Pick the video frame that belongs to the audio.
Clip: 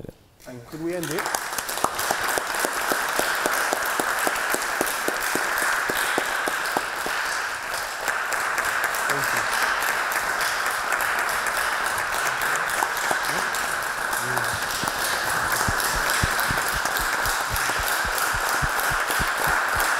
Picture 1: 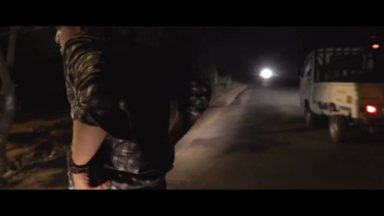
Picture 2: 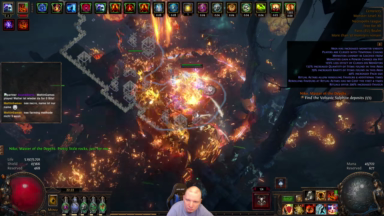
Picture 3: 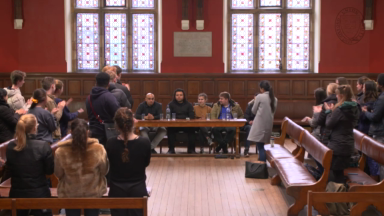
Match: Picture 3